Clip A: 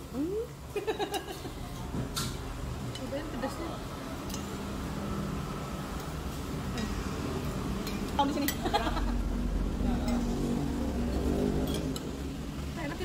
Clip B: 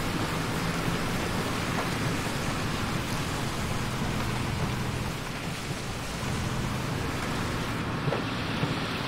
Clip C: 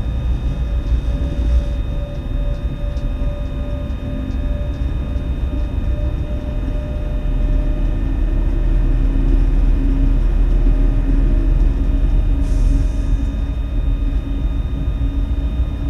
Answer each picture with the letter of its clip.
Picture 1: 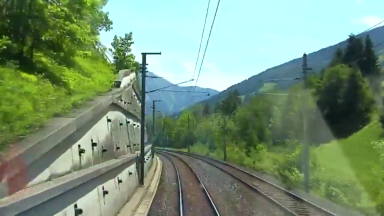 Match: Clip C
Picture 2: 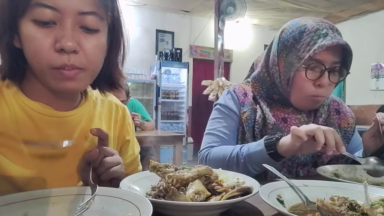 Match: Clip A